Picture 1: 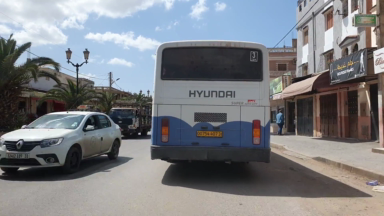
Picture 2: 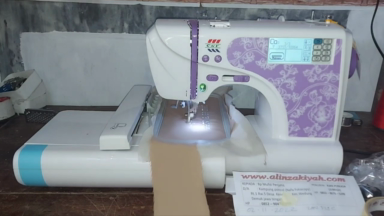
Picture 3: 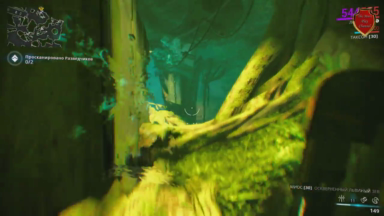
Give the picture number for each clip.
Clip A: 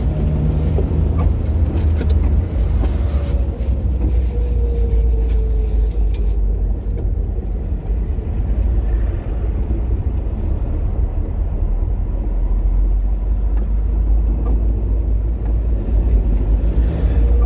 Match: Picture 1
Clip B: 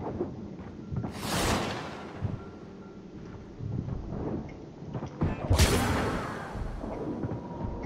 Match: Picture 3